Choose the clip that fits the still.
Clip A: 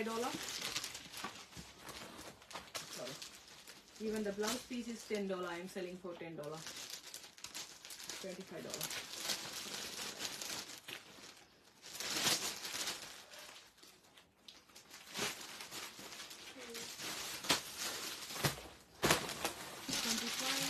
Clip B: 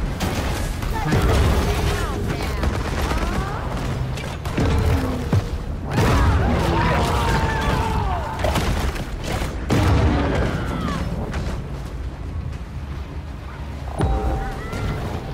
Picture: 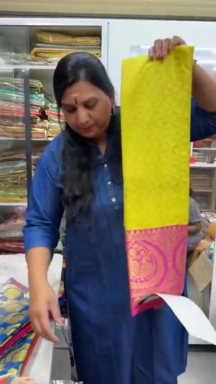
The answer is A